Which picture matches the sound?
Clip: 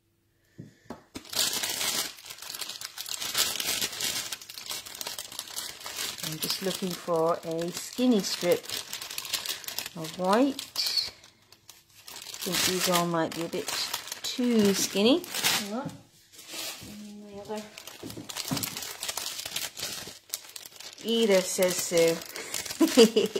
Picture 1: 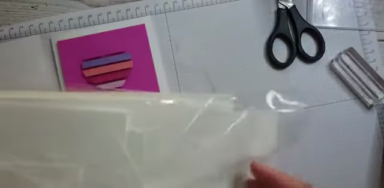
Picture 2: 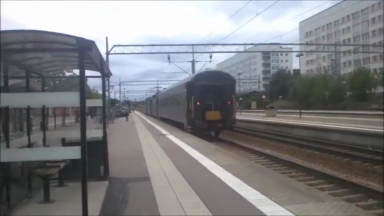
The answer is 1